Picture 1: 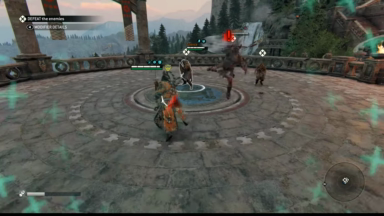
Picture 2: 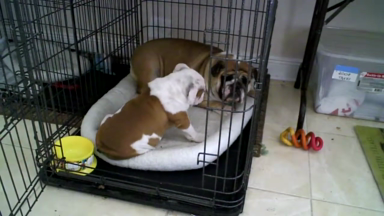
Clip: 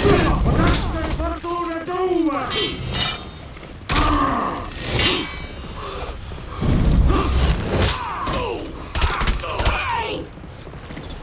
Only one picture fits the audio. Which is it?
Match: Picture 1